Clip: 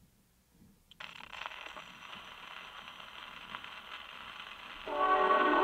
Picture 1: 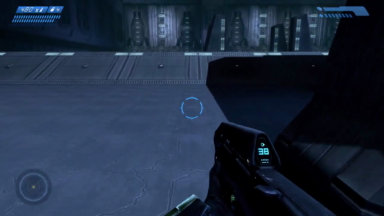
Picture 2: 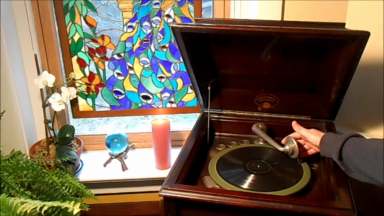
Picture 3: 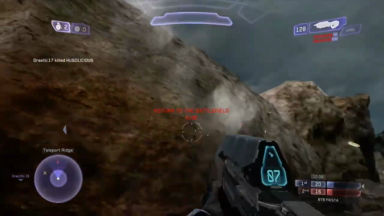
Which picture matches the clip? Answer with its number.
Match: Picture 2